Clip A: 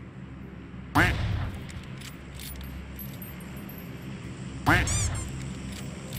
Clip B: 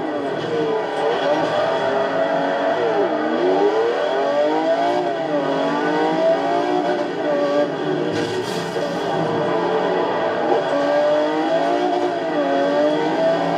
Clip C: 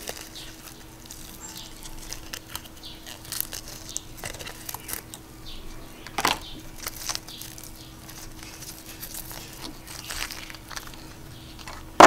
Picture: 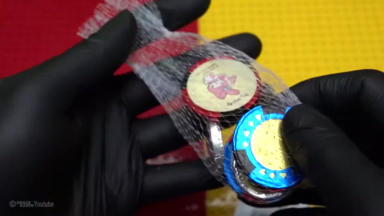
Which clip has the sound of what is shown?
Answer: C